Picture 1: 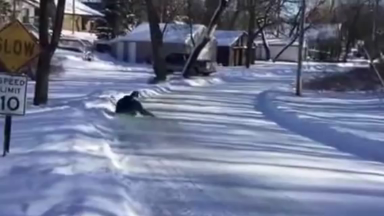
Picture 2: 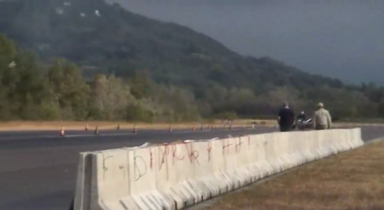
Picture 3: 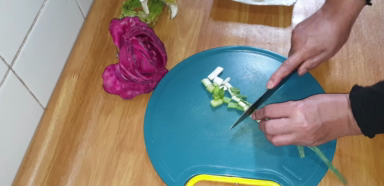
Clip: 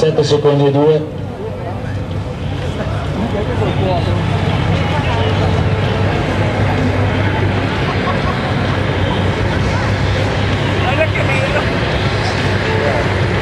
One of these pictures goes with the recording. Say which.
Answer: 2